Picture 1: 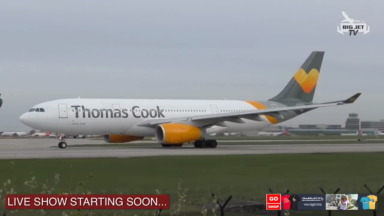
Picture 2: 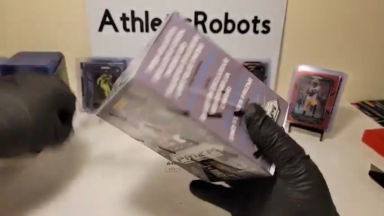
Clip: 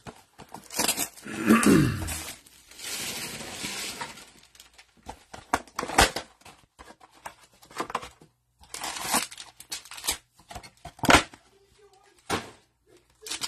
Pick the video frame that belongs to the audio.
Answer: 2